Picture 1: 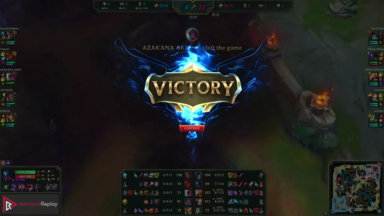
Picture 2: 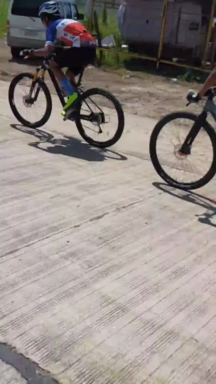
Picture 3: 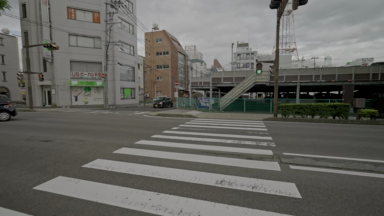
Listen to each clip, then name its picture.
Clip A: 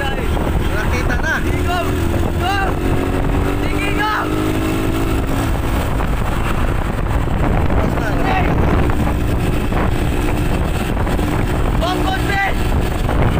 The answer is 2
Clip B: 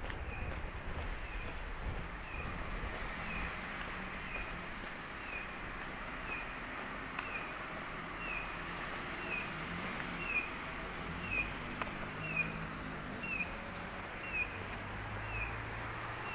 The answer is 3